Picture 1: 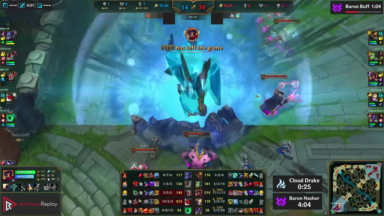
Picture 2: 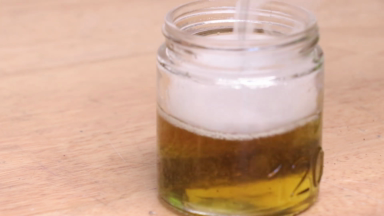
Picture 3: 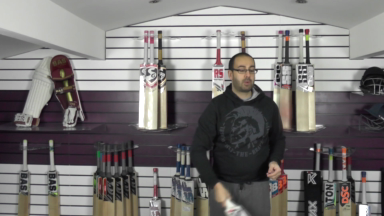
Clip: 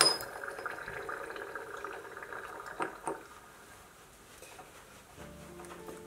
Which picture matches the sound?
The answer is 2